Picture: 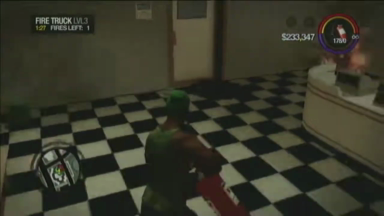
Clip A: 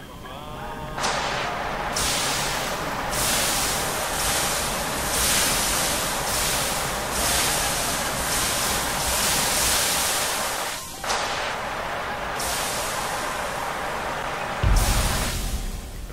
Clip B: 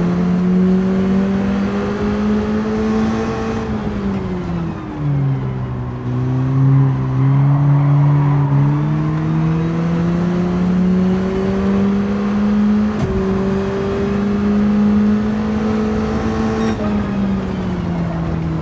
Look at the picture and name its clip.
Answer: A